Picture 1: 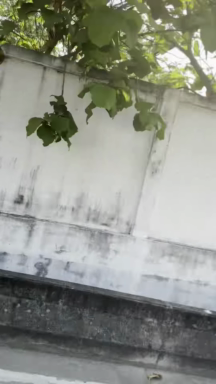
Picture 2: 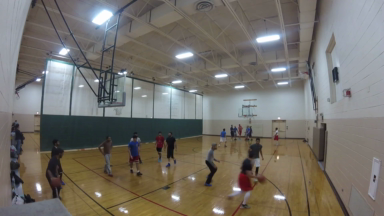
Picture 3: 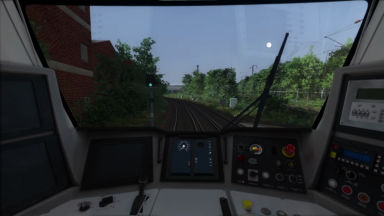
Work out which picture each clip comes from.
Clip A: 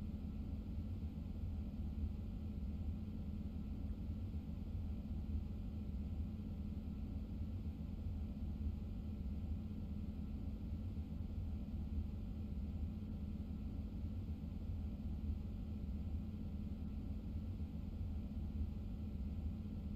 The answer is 3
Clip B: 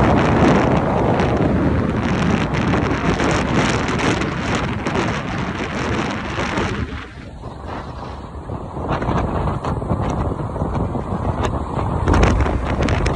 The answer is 1